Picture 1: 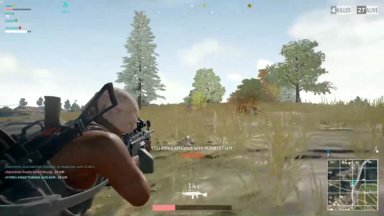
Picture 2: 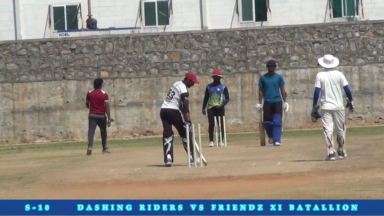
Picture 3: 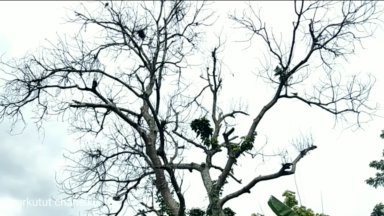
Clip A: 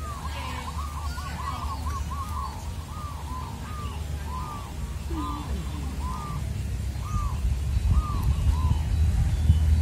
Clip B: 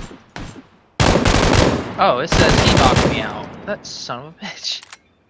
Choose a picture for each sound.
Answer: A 3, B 1